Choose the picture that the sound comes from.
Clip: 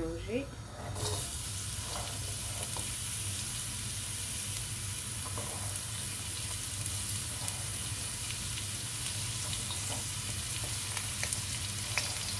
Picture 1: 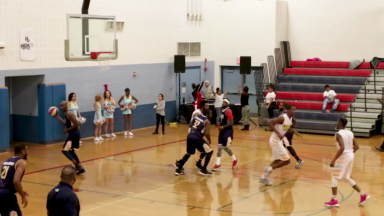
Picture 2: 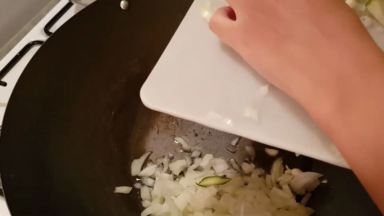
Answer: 2